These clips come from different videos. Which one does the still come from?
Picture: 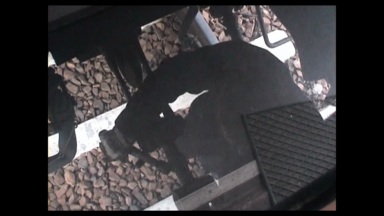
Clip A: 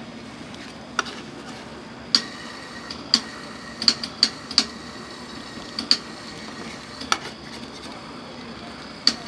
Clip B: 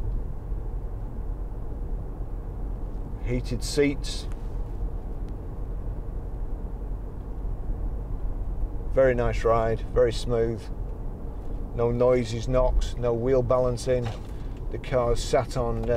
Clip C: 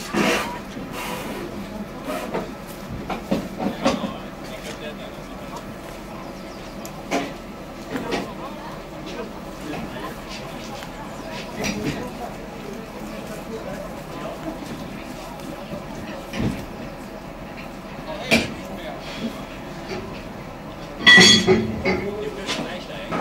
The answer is C